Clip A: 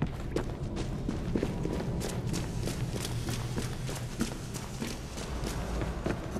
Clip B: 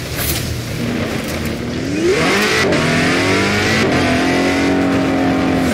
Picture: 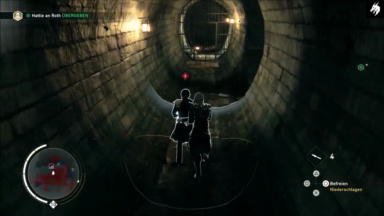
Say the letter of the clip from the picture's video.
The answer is A